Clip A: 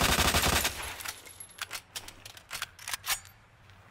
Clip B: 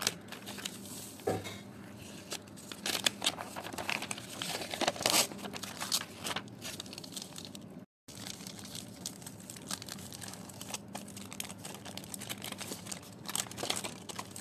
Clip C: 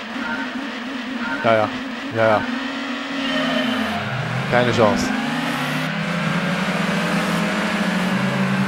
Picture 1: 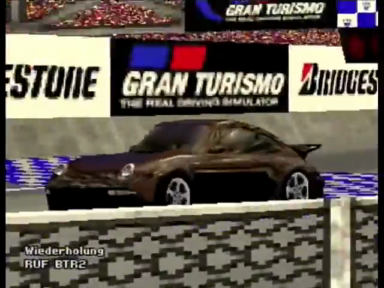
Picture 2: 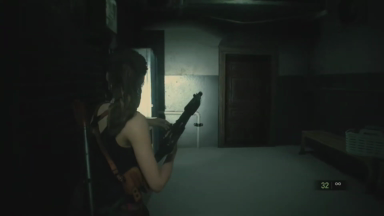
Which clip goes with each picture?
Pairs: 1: C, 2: A